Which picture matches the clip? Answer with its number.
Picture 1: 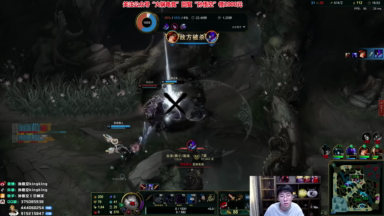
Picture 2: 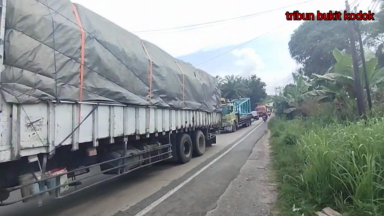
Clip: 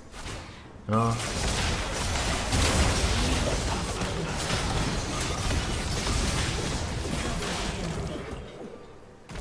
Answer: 1